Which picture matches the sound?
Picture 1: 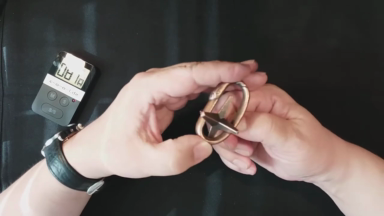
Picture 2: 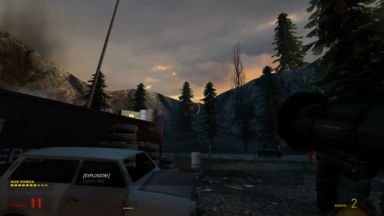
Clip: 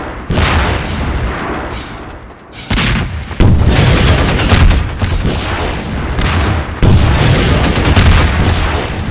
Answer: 2